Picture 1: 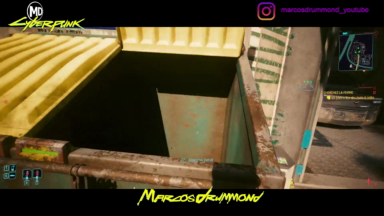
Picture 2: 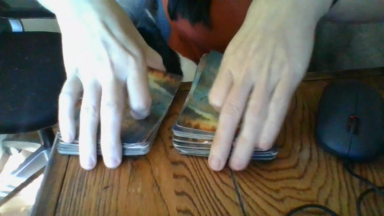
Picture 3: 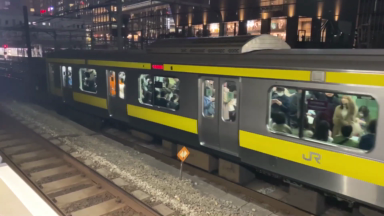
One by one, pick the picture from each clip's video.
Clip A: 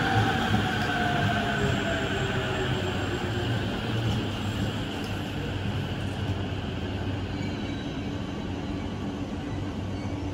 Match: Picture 3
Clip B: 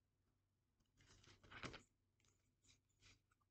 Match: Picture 2